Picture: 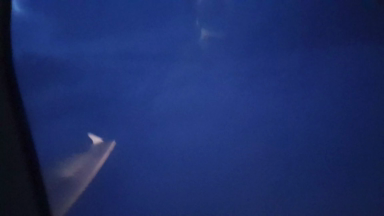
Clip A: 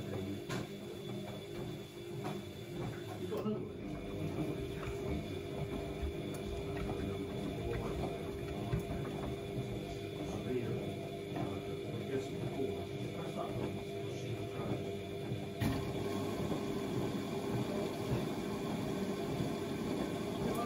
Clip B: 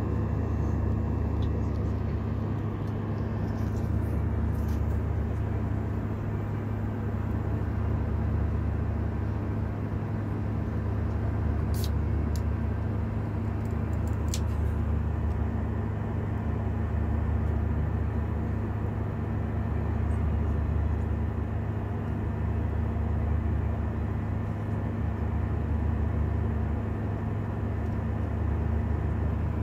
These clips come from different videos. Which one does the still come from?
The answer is B